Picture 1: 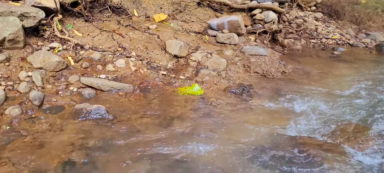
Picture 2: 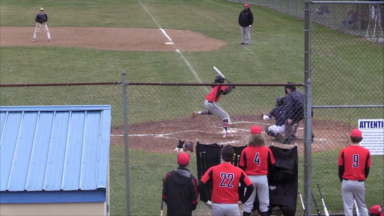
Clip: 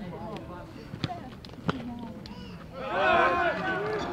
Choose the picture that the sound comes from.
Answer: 2